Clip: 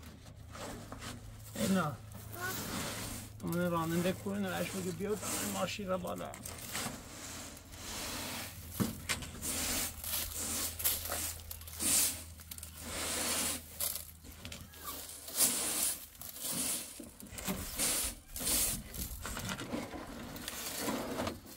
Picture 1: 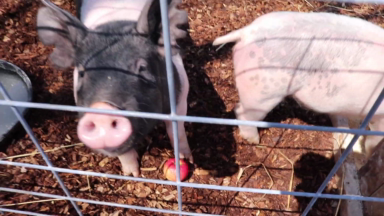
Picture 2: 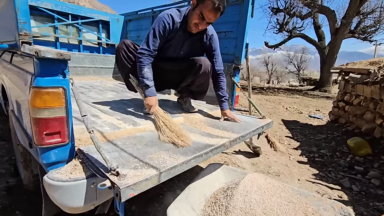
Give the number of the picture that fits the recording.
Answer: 2